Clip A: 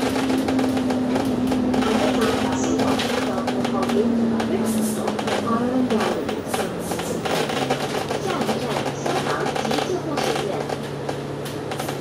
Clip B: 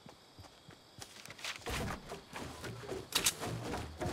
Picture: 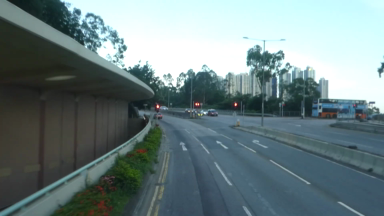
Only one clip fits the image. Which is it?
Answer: A